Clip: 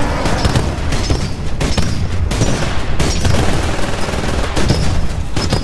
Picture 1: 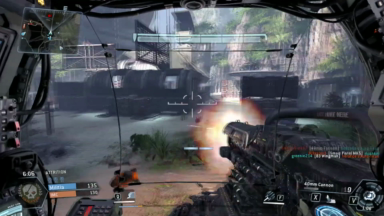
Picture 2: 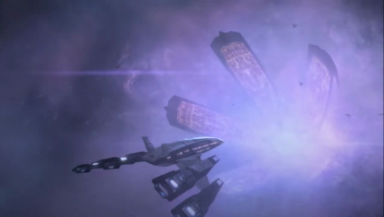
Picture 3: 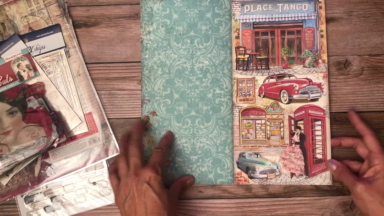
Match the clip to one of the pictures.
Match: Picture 1